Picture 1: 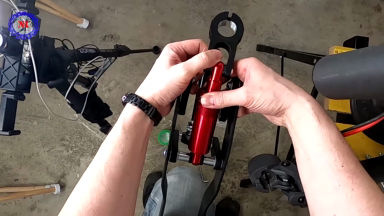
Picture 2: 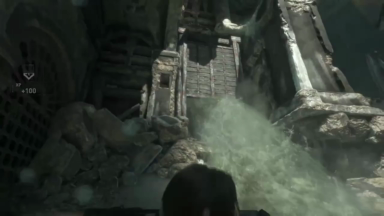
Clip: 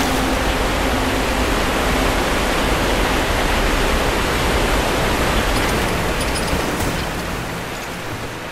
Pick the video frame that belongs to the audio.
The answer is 2